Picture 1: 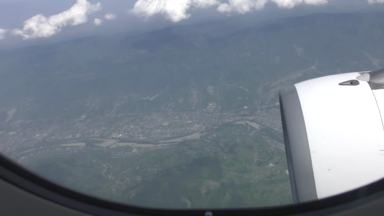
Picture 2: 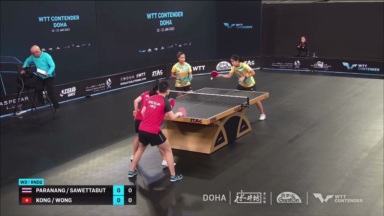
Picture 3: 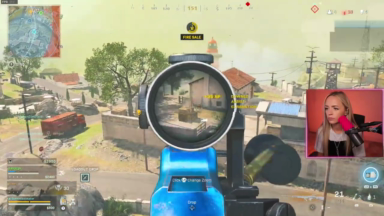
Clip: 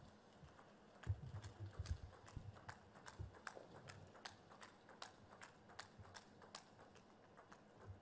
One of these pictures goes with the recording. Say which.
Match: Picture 2